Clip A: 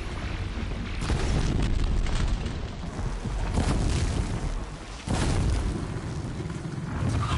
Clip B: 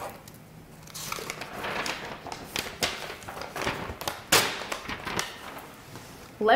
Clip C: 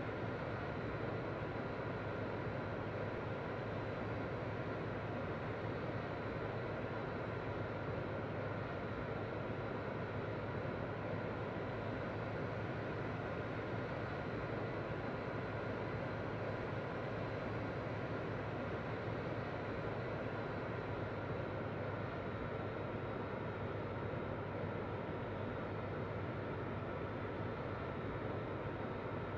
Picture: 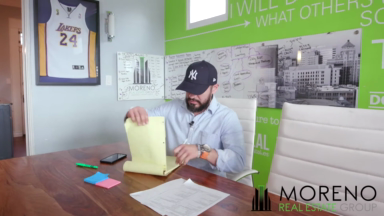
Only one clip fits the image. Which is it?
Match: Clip B